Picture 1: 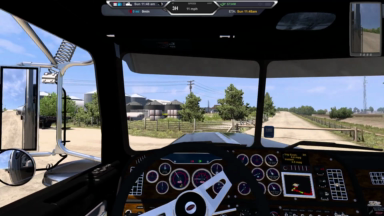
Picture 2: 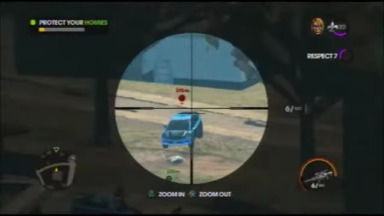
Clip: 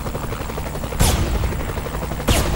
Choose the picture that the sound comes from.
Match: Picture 2